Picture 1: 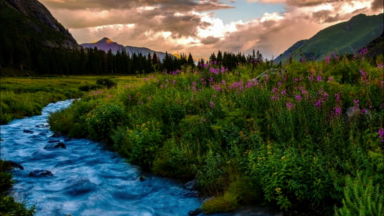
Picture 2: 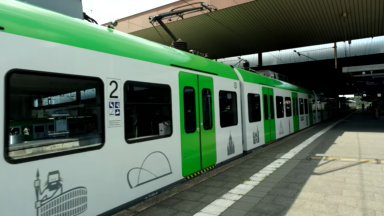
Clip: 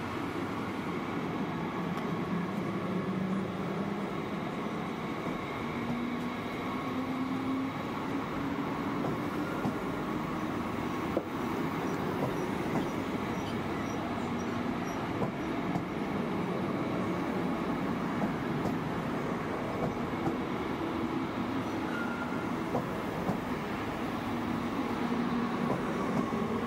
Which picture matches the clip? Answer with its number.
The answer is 2